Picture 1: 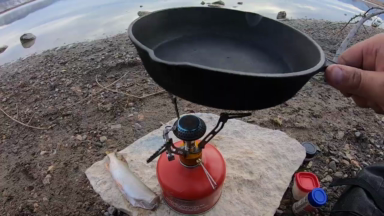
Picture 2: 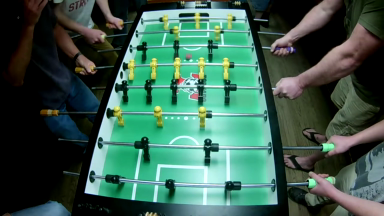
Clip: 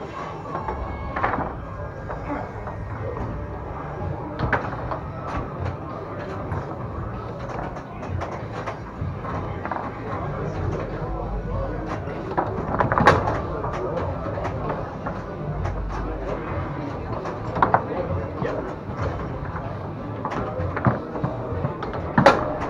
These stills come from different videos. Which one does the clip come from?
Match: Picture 2